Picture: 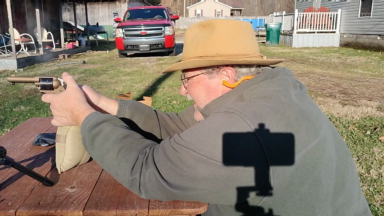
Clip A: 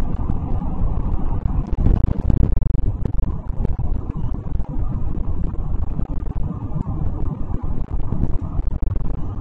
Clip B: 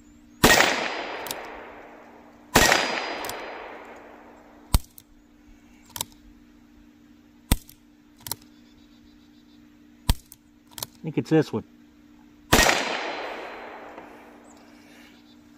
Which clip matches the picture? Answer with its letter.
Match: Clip B